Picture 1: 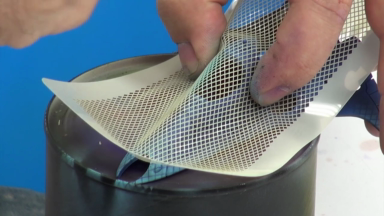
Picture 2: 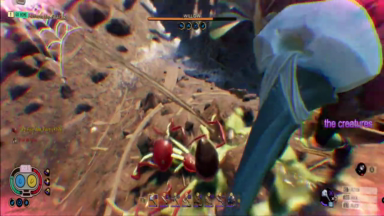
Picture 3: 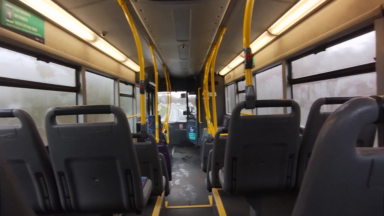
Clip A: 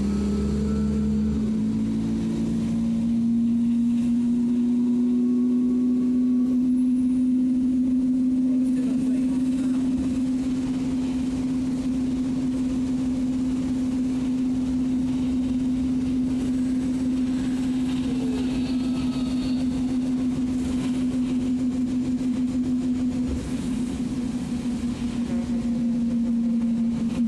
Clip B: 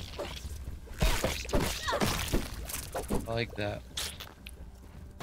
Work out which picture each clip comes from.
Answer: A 3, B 2